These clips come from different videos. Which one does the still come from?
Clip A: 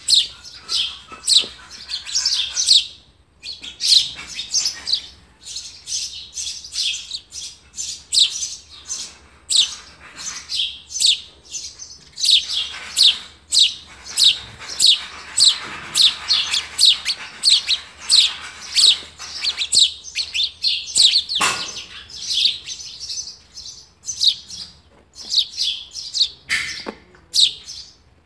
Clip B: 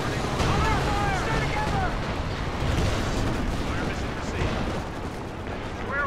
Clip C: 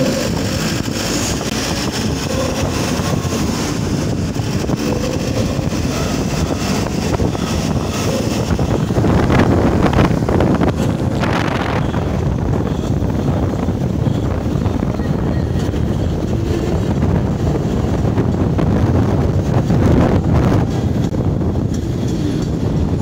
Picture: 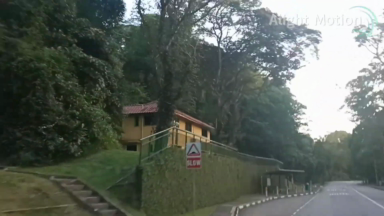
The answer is C